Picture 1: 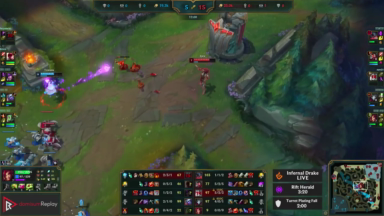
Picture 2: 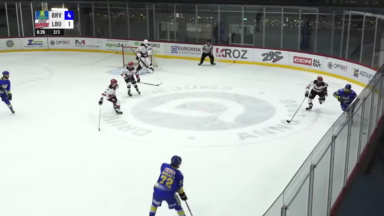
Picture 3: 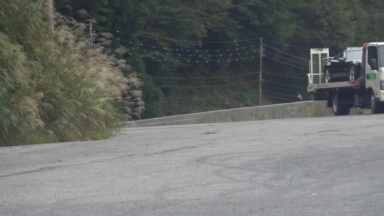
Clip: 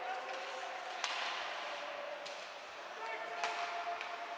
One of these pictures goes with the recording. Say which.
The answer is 2